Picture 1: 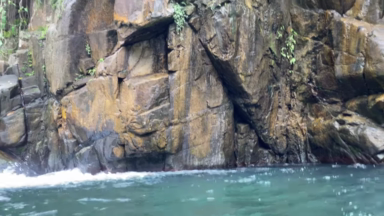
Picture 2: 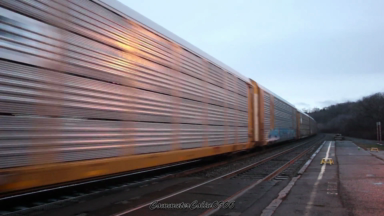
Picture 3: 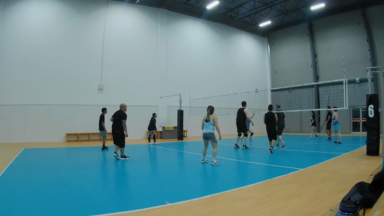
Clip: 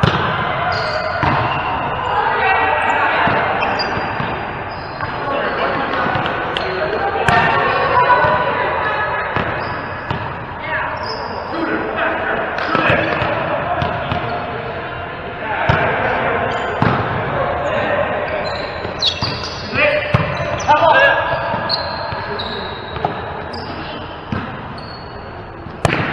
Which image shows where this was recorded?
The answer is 3